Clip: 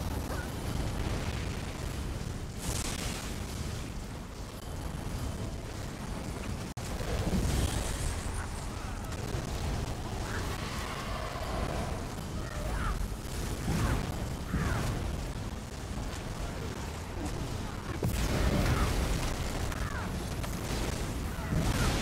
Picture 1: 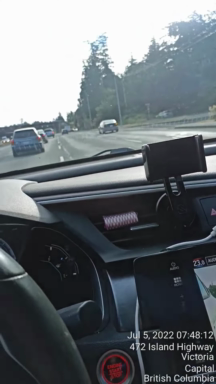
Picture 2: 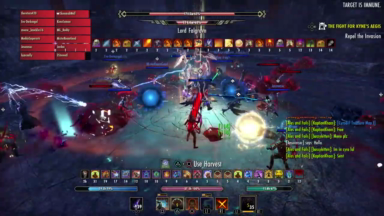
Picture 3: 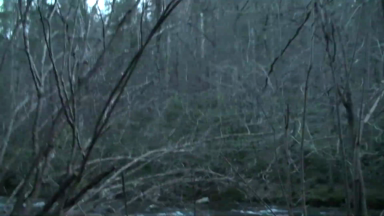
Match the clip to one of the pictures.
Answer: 2